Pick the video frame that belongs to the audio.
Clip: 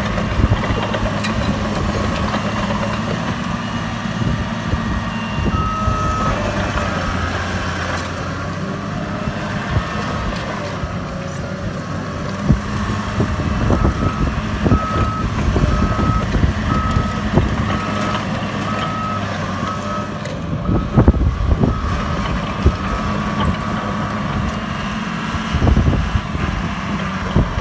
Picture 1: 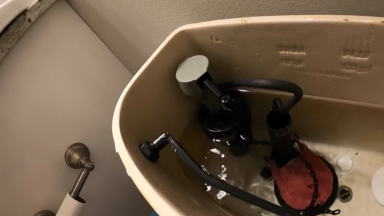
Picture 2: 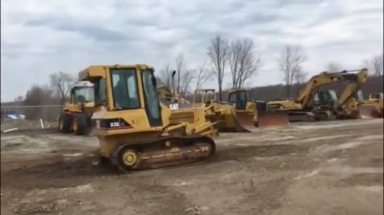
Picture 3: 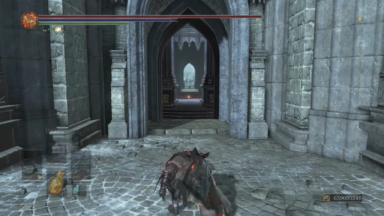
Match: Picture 2